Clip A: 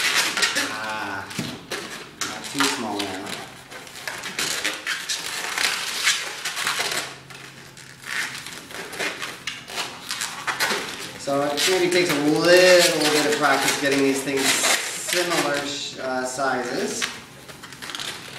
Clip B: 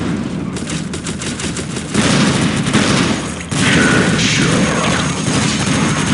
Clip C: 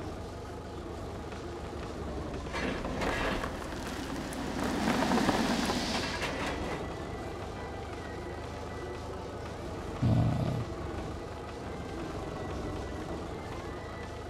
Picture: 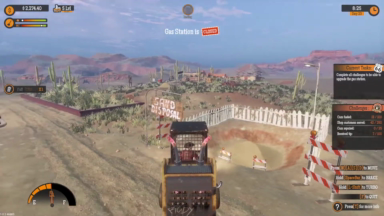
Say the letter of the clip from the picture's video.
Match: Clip C